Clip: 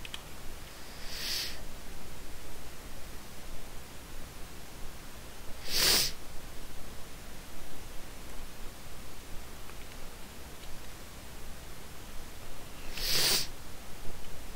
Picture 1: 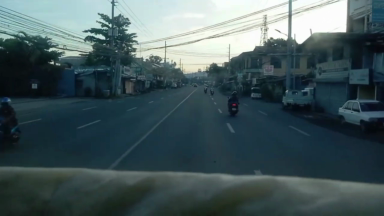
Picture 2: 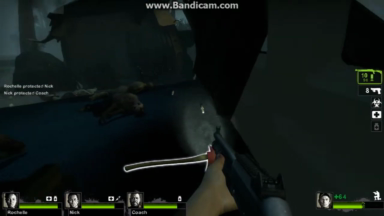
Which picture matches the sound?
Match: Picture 2